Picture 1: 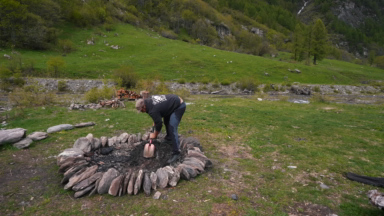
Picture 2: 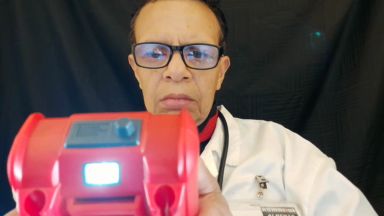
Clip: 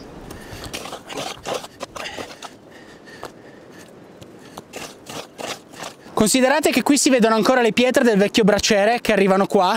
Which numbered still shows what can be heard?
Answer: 1